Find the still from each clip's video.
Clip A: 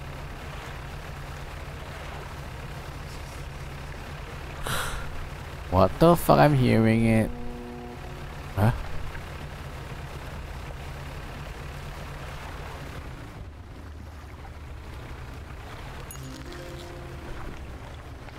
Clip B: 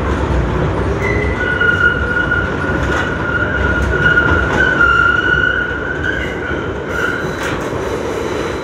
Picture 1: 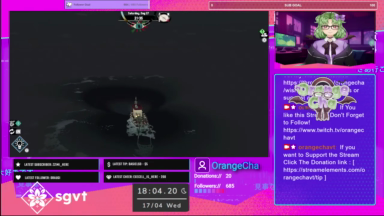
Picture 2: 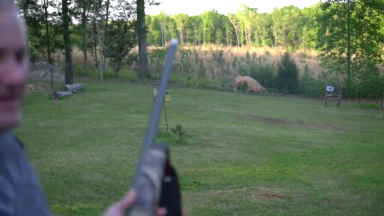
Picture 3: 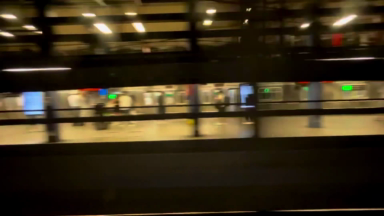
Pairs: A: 1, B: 3